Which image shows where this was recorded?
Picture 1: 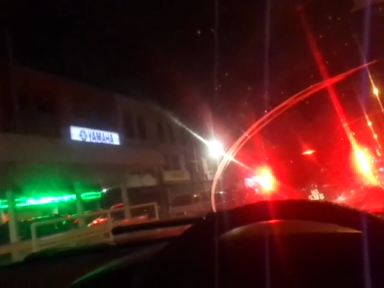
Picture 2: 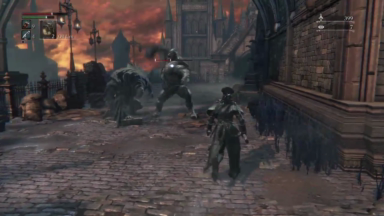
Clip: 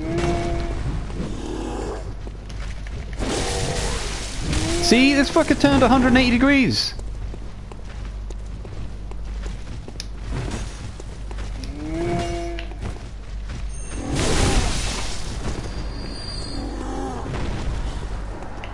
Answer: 2